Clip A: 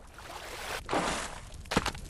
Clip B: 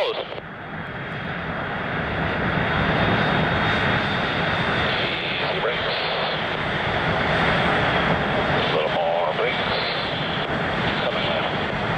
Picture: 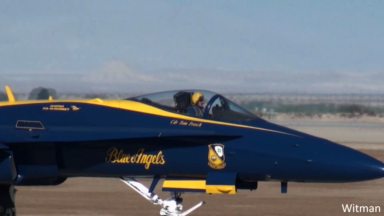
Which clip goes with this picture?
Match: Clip B